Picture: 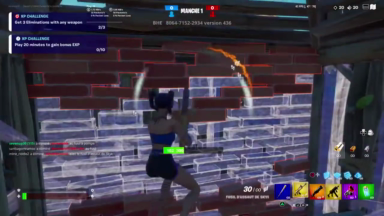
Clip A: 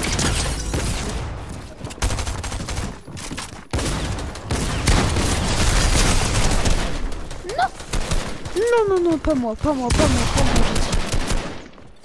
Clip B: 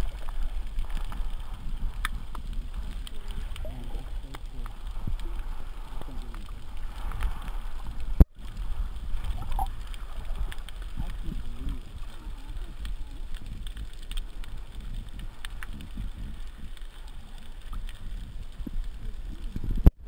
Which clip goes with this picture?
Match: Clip A